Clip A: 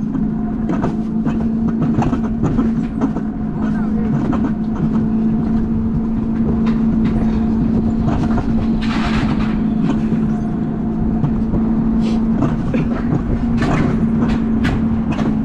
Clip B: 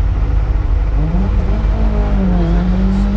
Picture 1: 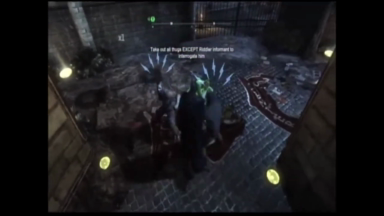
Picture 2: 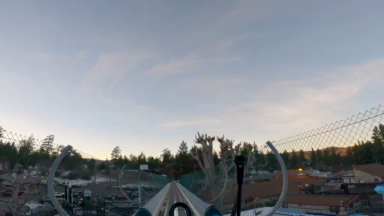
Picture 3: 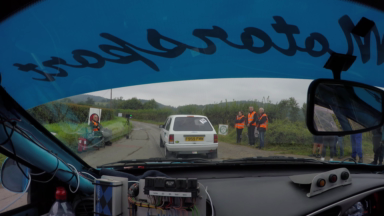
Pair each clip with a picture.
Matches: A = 2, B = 3